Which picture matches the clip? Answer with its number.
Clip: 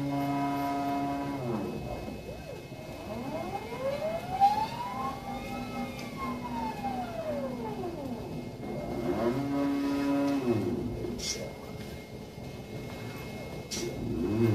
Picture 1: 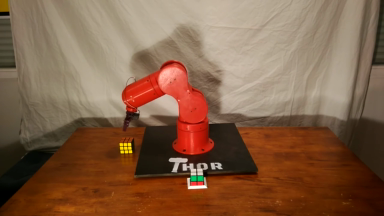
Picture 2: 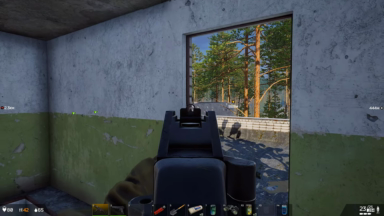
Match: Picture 1